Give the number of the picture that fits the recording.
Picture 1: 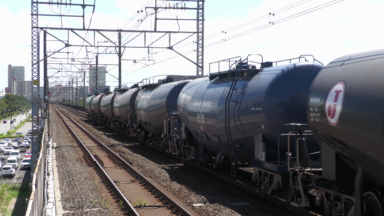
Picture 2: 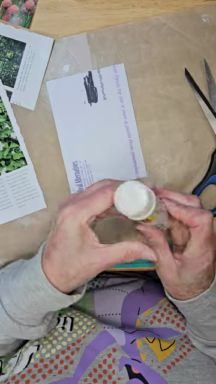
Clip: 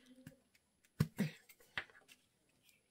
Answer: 2